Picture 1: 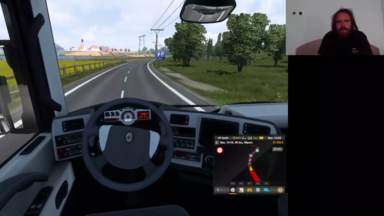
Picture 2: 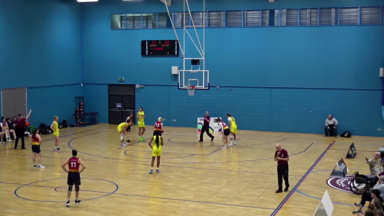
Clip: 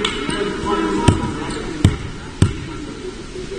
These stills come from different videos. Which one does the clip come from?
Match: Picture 2